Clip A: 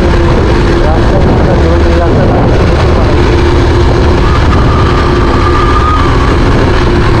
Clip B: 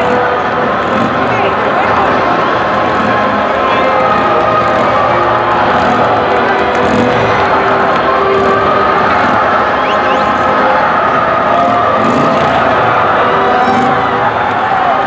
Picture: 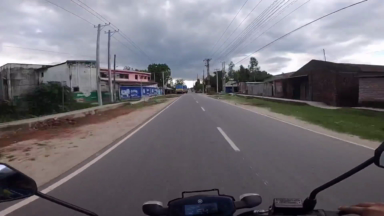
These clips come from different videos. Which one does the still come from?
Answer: A